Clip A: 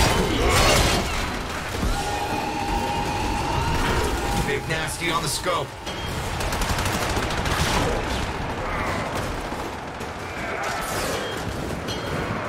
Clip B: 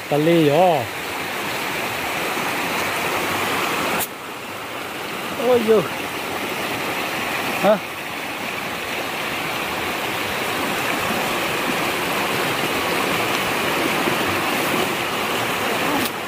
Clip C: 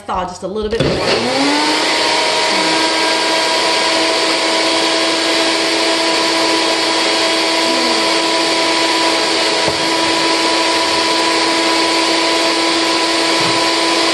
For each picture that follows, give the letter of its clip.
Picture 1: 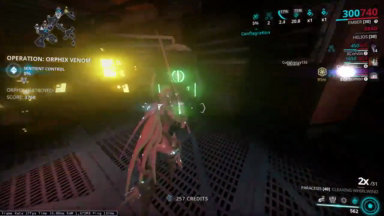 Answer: A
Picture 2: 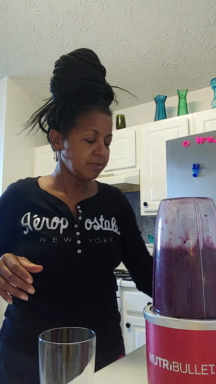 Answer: C